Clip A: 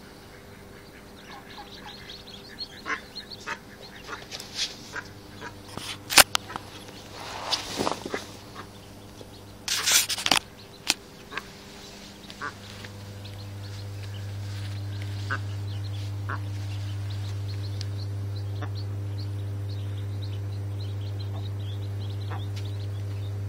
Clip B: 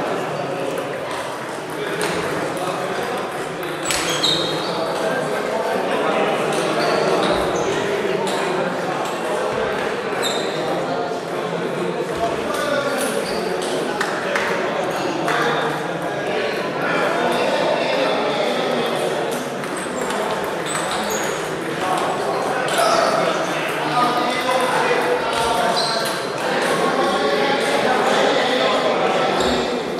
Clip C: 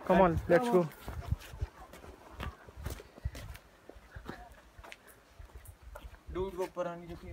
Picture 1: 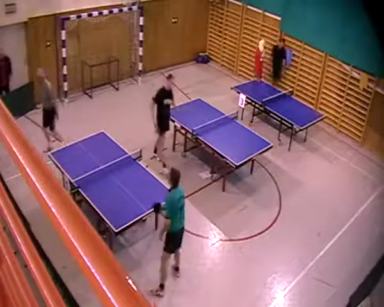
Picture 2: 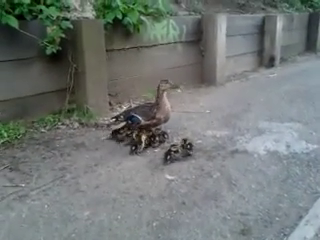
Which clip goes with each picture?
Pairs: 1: B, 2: A